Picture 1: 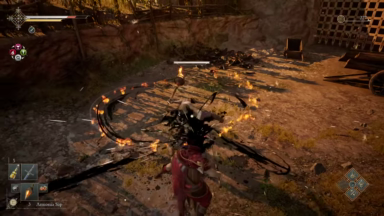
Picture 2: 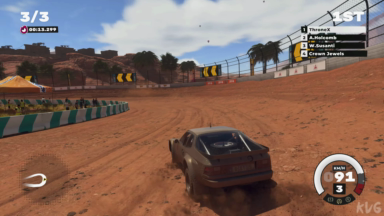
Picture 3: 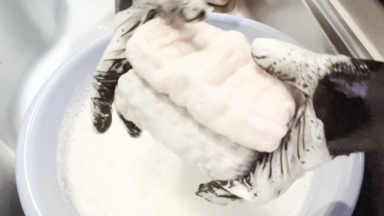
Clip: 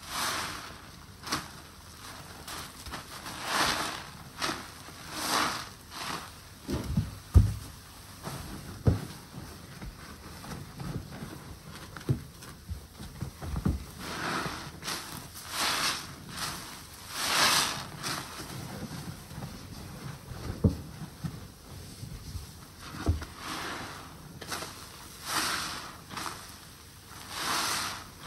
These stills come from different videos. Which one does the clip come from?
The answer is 3